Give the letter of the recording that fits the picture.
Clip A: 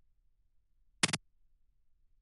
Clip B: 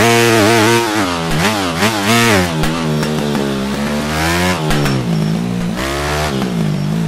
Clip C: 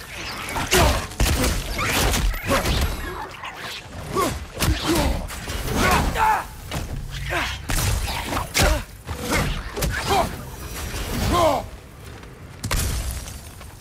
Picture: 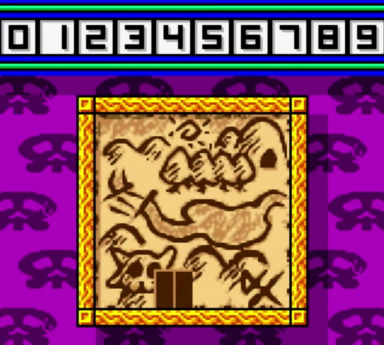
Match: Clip A